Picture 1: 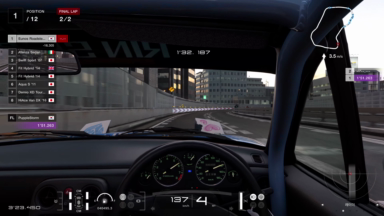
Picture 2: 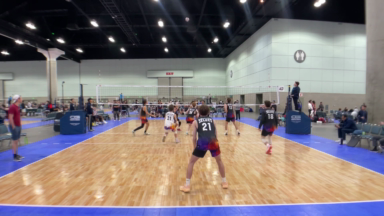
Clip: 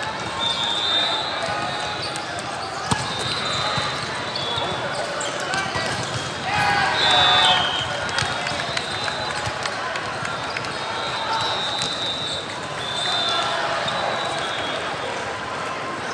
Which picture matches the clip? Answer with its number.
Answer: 2